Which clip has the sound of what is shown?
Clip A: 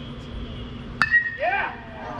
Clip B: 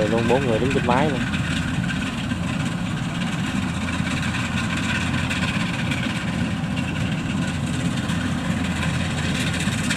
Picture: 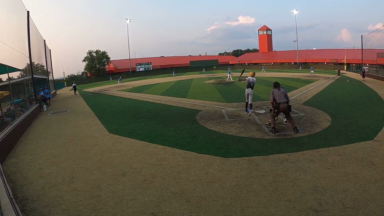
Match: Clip A